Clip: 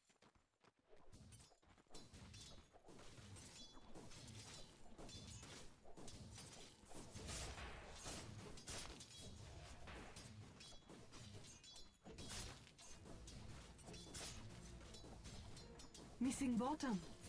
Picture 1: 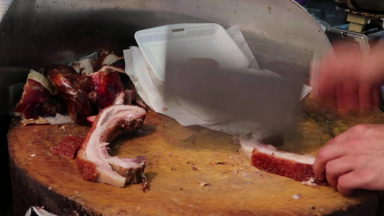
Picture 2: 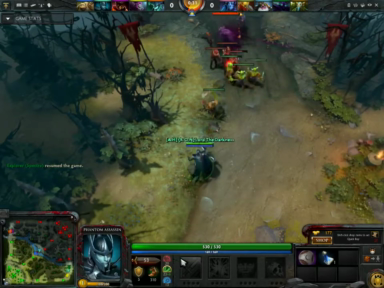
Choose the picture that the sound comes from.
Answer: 2